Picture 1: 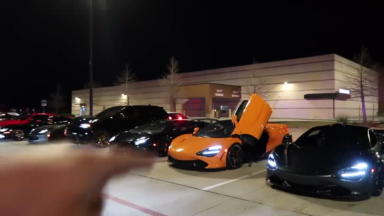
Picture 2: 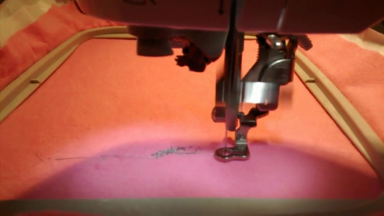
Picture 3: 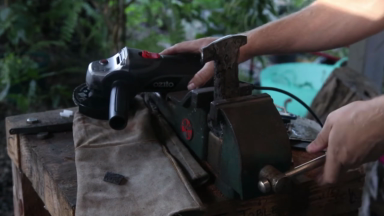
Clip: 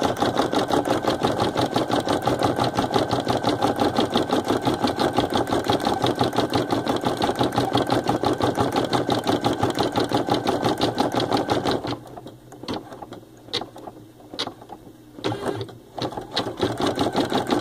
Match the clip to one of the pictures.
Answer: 2